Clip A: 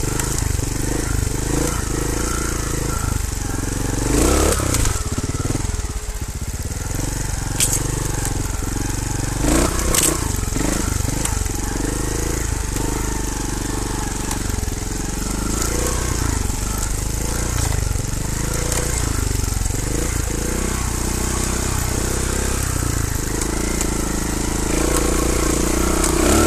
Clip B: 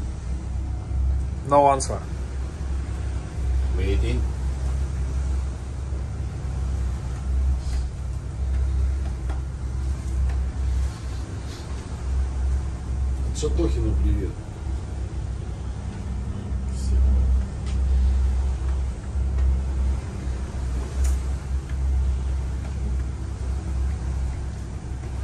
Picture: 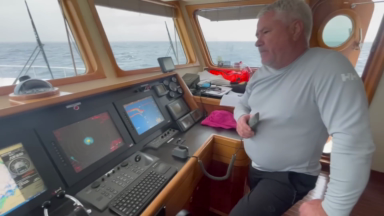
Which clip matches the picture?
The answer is B